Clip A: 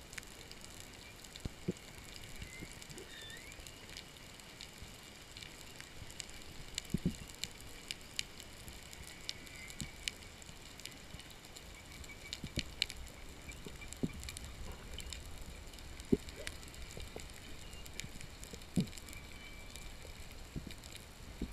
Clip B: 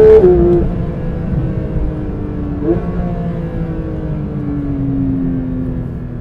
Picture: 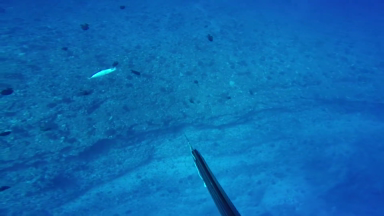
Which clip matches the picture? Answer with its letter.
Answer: A